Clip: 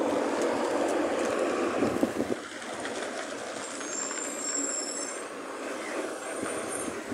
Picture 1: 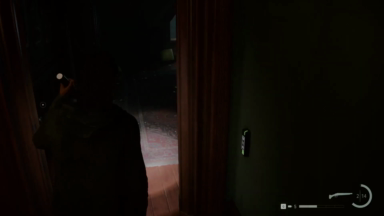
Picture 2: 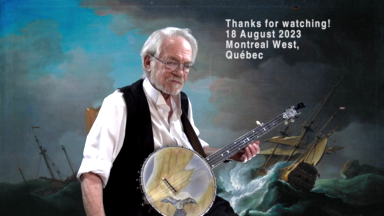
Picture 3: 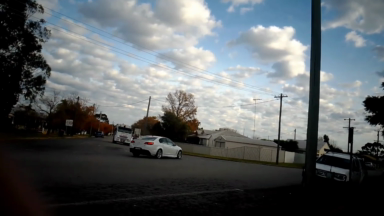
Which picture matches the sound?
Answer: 3